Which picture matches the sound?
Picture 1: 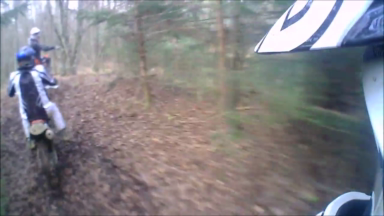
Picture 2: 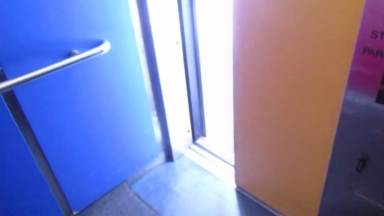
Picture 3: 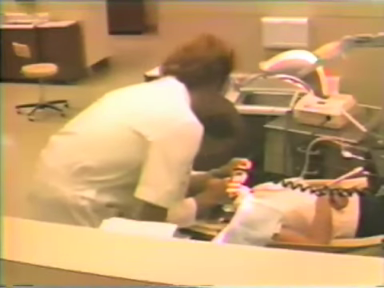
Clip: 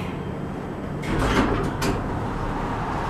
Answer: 2